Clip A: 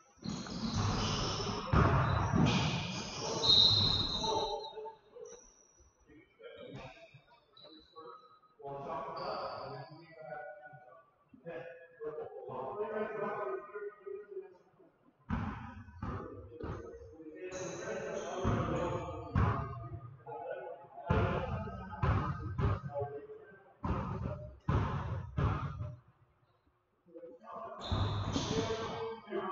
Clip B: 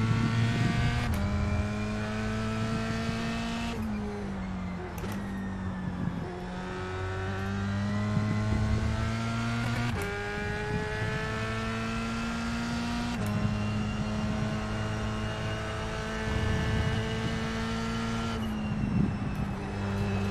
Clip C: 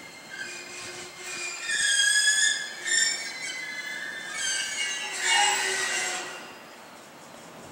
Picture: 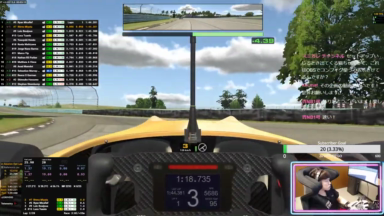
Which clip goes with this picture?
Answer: B